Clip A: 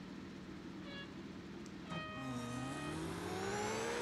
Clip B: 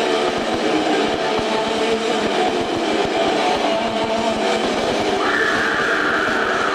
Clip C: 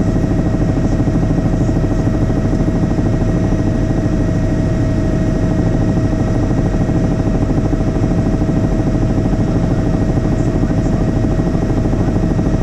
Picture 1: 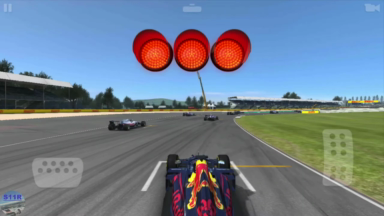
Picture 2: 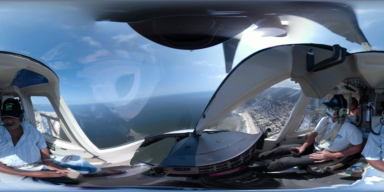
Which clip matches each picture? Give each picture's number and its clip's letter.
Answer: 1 A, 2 C